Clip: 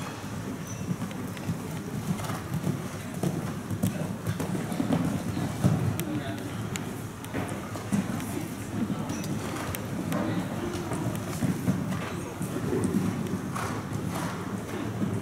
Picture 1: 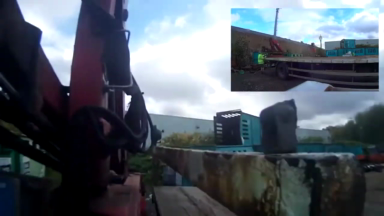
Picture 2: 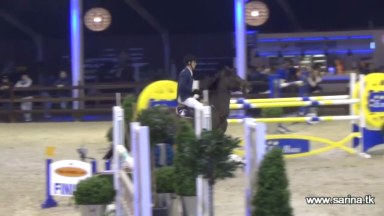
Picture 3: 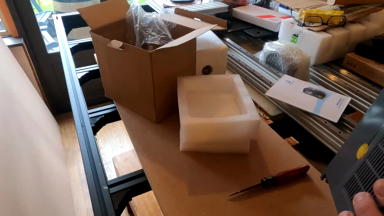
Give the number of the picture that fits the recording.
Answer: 2